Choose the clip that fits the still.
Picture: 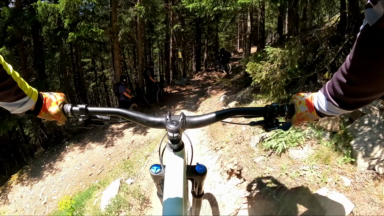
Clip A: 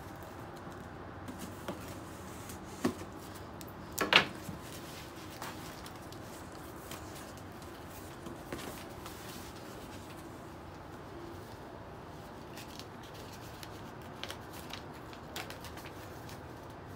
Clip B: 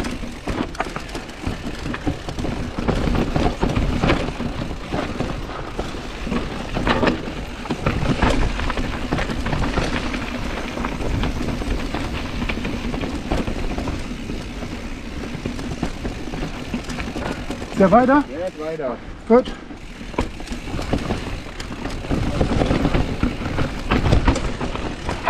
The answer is B